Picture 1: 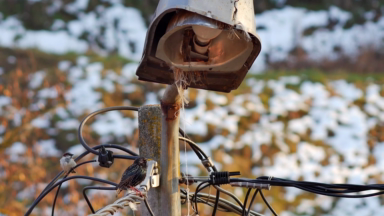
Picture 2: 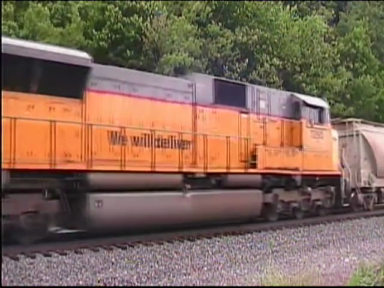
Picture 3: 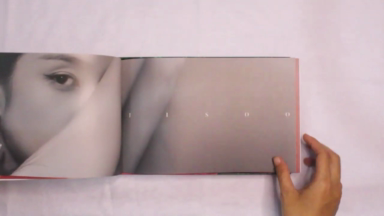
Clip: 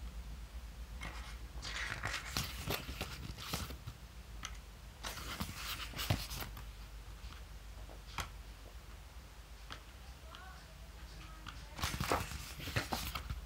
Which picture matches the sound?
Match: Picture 3